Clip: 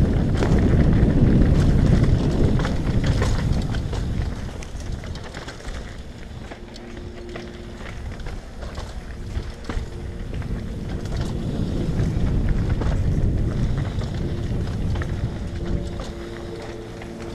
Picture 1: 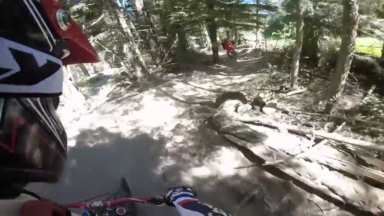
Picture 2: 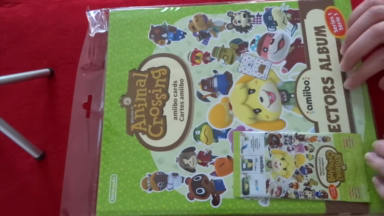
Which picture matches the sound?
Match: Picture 1